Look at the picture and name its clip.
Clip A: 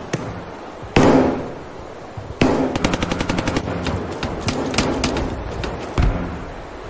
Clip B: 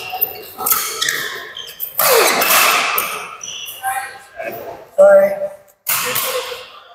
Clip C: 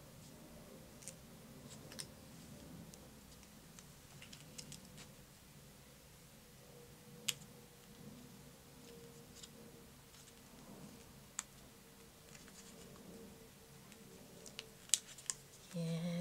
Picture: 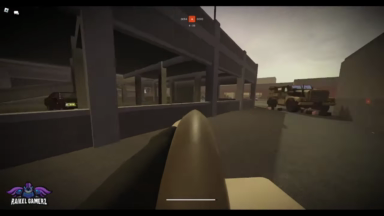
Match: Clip A